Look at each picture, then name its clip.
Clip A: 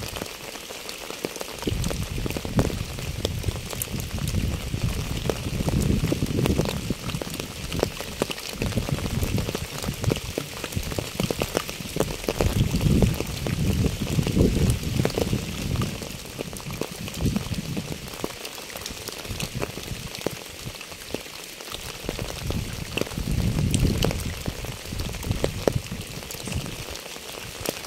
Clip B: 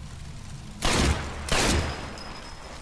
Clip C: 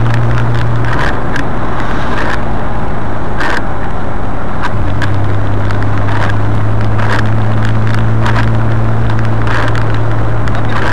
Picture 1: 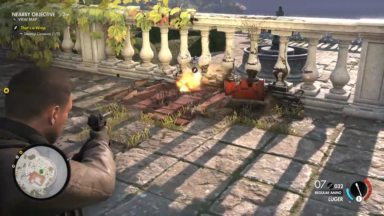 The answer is B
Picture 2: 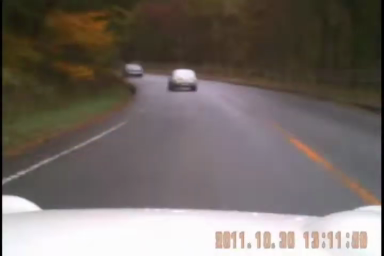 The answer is C